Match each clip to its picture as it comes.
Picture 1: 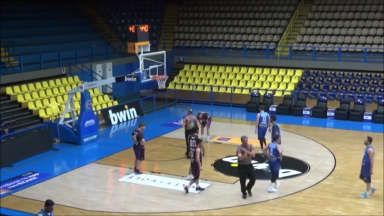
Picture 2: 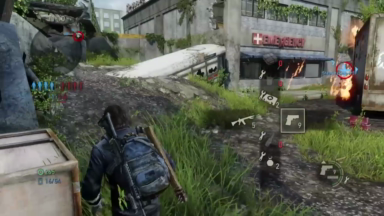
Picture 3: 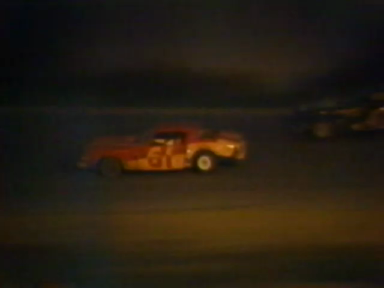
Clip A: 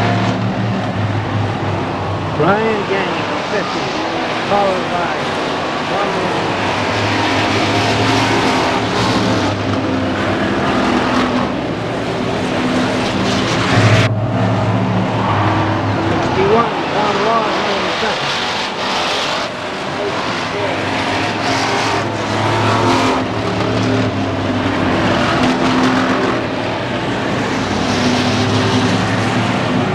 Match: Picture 3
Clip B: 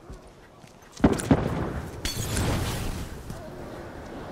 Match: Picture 2